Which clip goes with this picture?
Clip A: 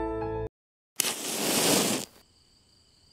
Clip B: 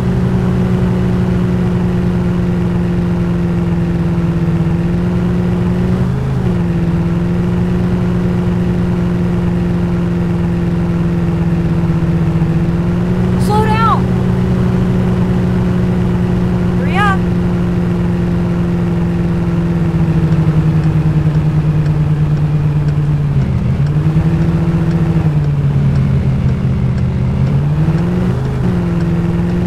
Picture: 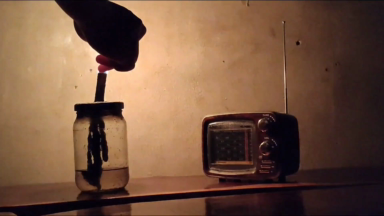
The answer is A